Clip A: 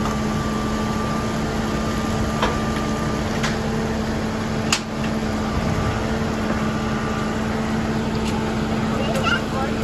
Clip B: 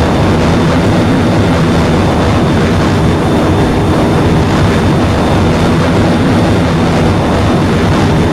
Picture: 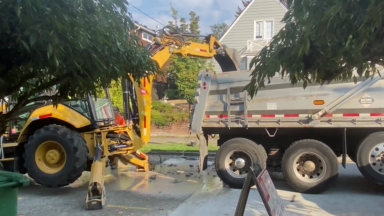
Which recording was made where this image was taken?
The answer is A